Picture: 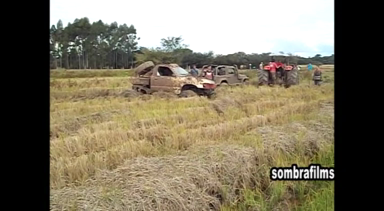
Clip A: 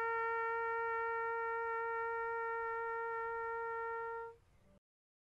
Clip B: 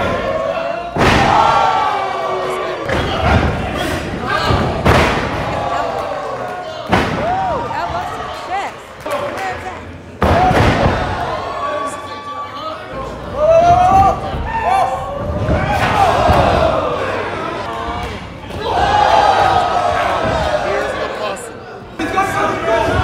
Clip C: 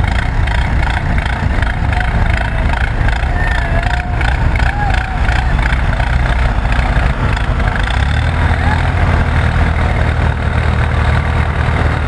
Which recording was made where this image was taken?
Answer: C